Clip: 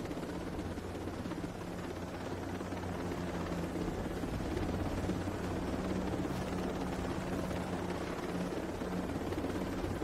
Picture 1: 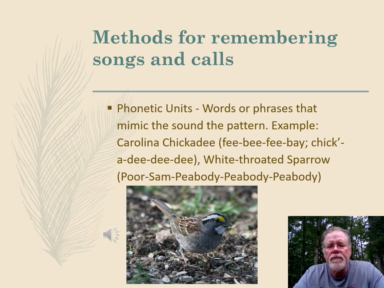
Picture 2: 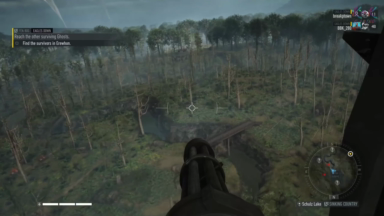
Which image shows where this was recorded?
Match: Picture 2